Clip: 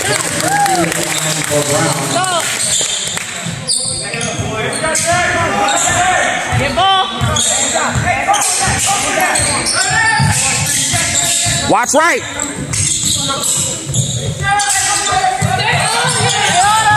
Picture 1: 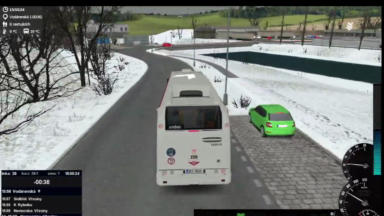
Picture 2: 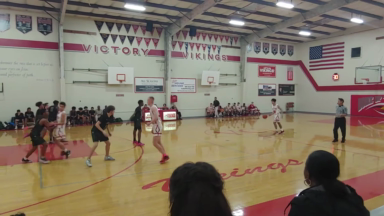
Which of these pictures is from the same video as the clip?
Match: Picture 2